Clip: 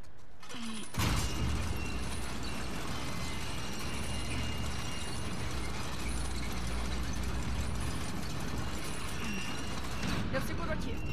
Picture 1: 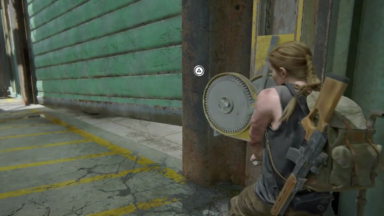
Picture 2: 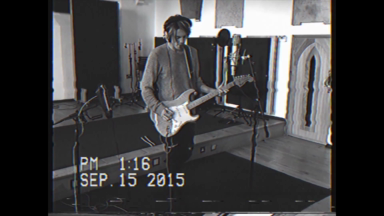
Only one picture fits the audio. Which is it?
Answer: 1